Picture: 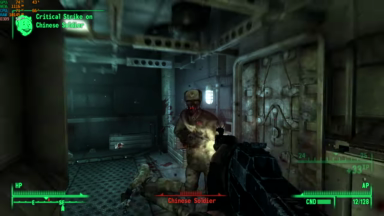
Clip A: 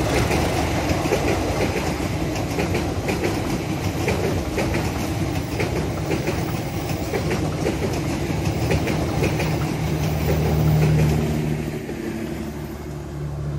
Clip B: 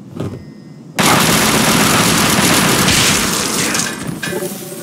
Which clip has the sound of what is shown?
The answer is B